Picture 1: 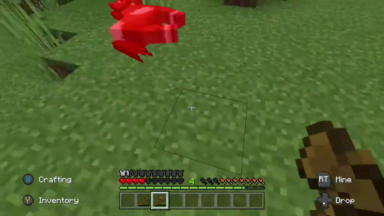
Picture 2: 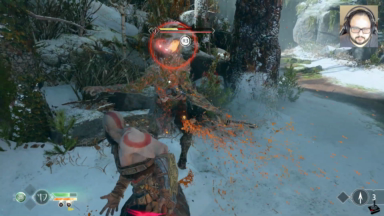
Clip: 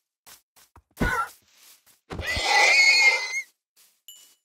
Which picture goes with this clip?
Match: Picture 1